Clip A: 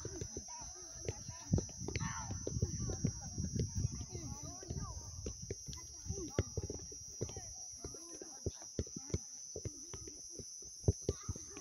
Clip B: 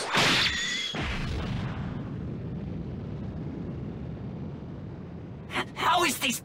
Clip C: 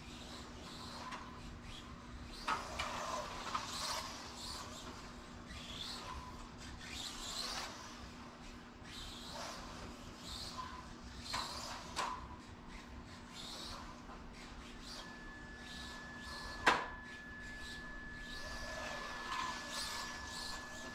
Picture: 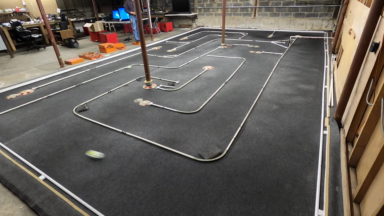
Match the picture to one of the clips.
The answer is C